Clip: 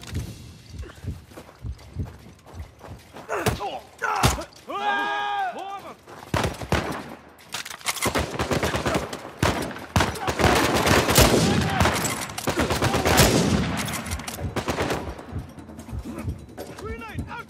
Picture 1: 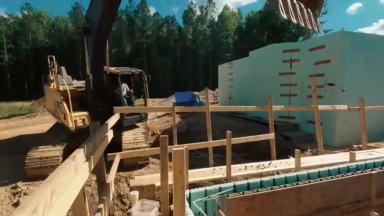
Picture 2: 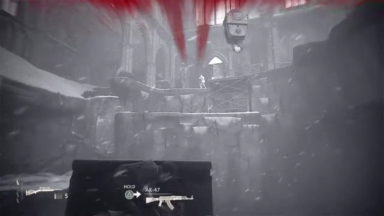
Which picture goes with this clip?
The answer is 2